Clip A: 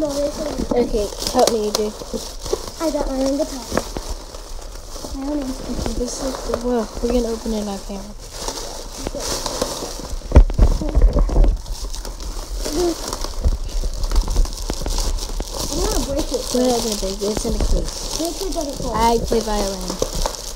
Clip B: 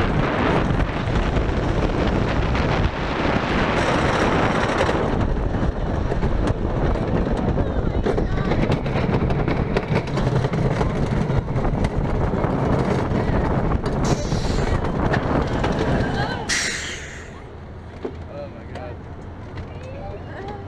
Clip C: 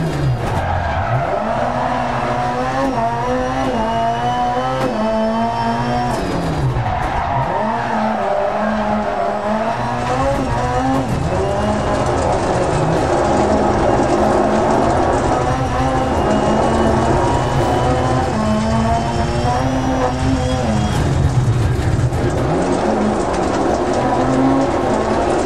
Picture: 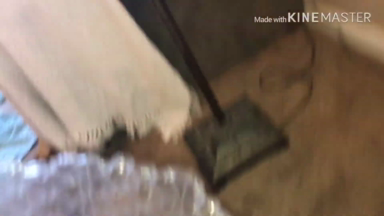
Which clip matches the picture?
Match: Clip A